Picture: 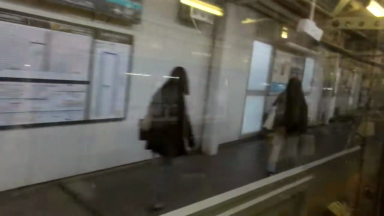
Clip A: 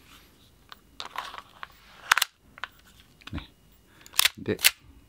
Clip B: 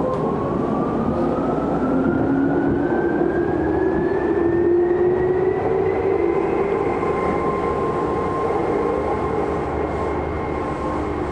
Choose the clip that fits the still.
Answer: B